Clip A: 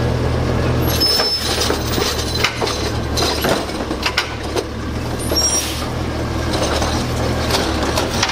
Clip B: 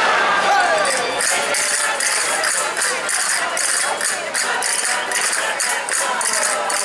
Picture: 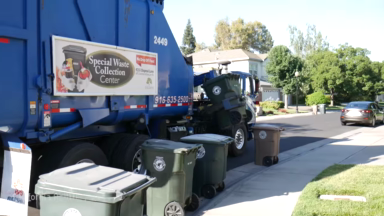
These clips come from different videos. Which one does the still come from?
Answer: A